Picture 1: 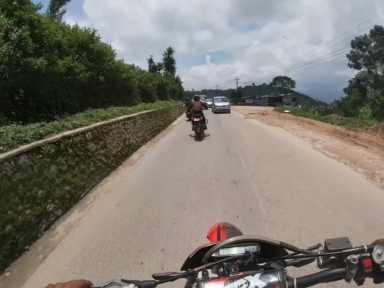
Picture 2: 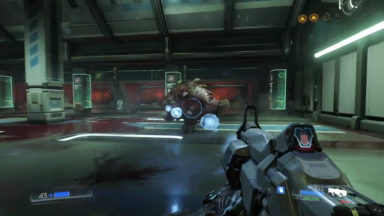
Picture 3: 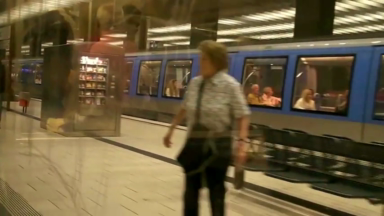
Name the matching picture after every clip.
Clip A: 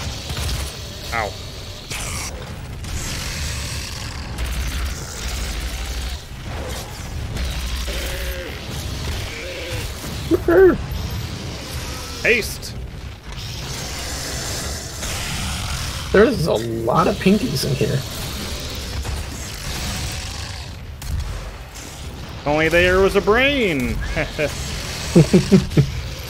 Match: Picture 2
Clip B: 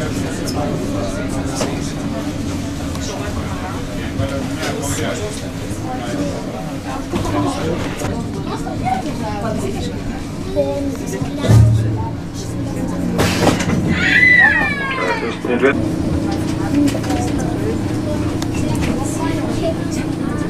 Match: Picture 3